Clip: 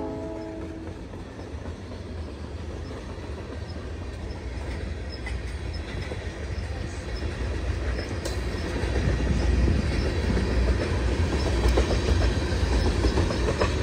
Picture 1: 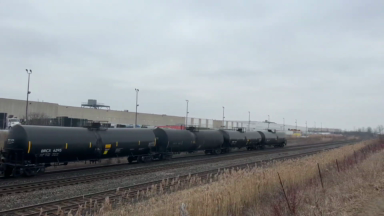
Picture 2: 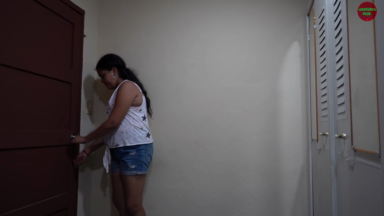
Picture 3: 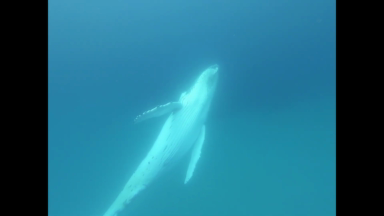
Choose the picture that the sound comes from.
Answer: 1